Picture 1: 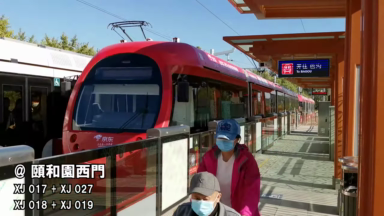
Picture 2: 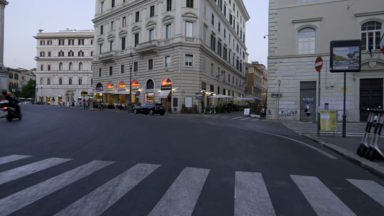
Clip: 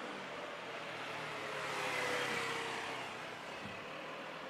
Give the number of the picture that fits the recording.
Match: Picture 2